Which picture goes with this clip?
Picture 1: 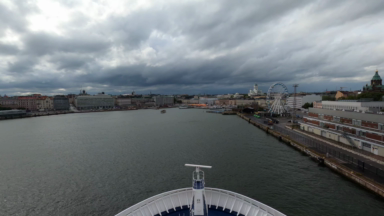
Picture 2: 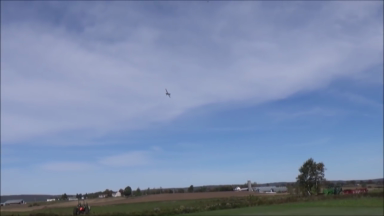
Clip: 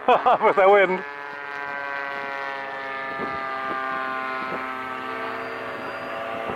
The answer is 2